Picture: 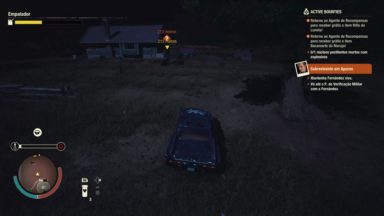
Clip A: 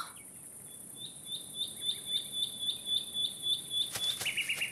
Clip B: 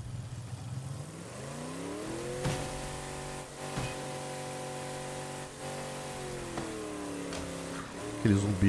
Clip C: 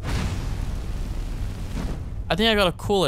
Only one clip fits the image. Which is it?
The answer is B